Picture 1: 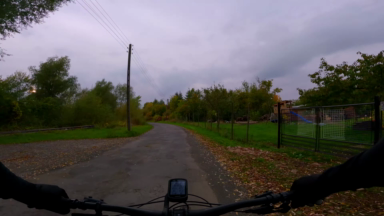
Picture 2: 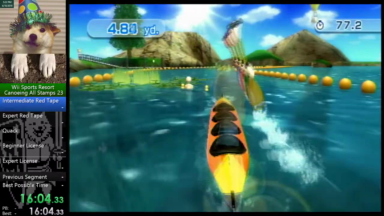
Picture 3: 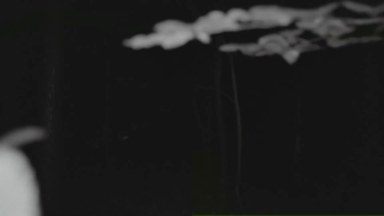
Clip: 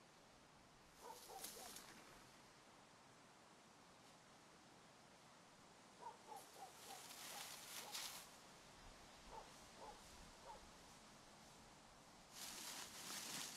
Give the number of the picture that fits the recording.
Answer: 3